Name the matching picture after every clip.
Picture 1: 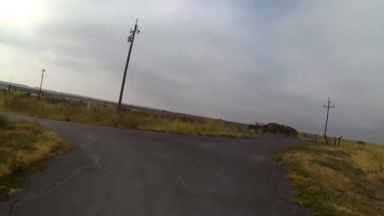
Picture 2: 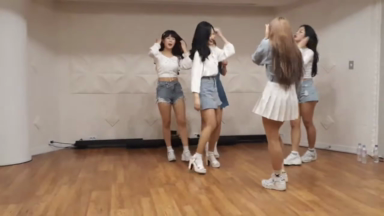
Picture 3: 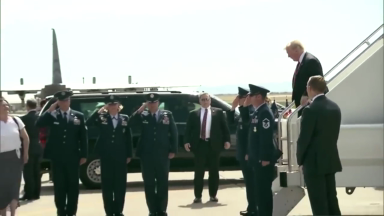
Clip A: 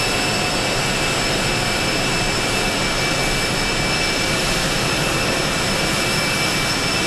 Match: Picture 3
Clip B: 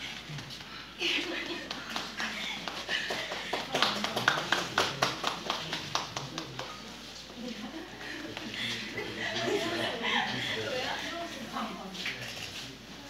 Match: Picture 2